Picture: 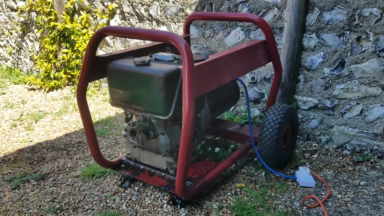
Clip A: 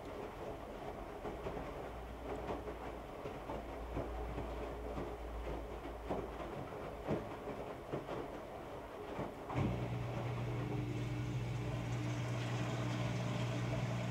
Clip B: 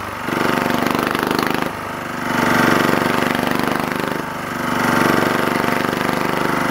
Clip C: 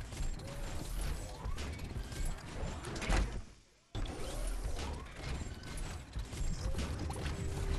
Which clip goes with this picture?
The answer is B